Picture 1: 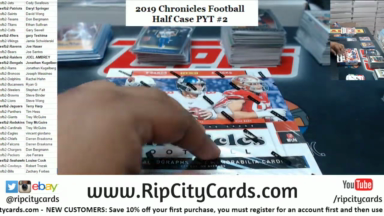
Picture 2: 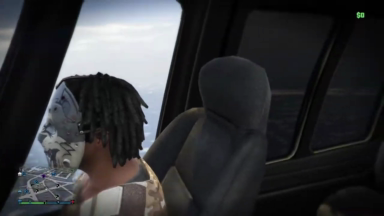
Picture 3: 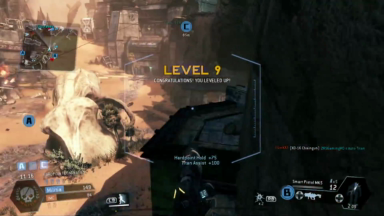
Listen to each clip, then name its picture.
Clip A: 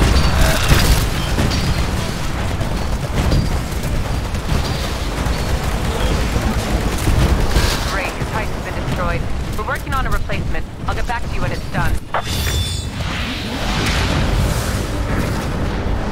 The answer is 3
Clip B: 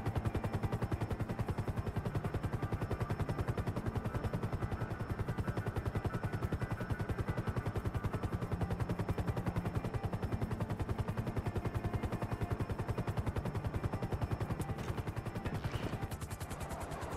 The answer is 2